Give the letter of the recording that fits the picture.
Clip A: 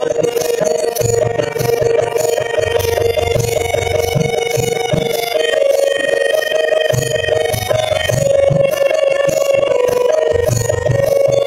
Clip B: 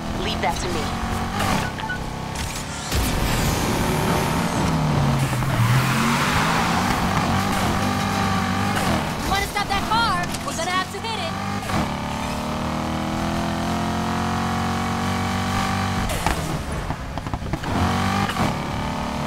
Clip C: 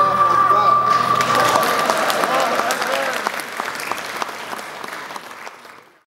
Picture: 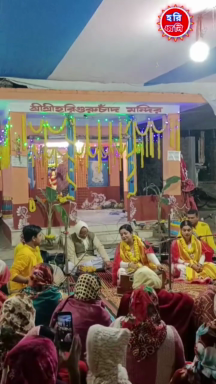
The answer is A